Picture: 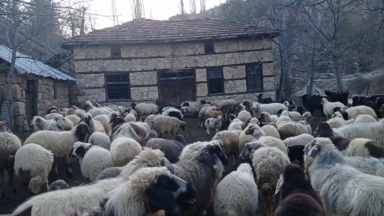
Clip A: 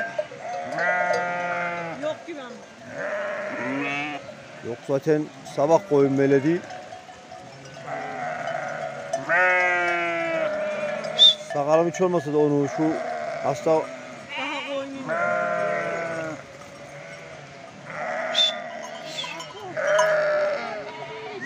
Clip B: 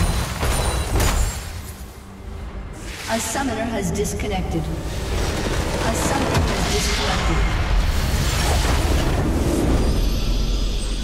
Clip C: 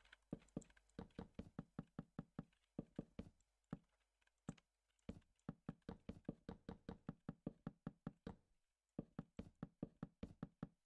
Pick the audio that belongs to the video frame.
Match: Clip A